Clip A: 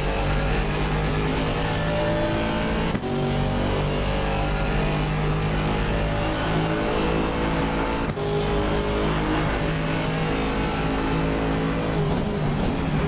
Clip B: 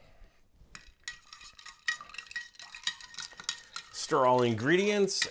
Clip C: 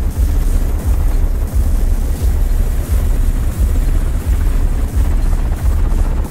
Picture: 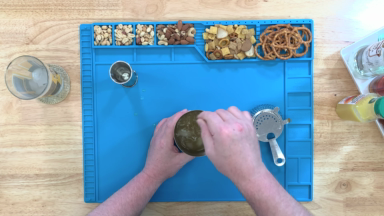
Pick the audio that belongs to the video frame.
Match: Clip B